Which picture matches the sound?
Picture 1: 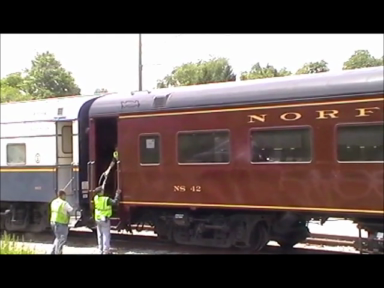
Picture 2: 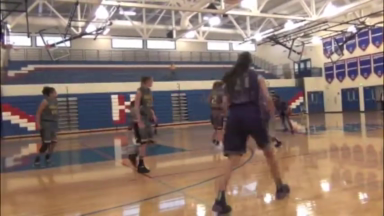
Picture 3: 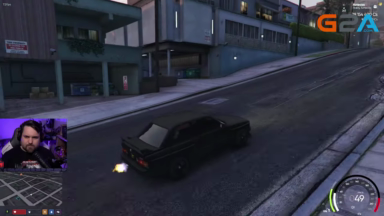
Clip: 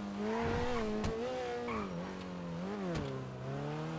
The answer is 3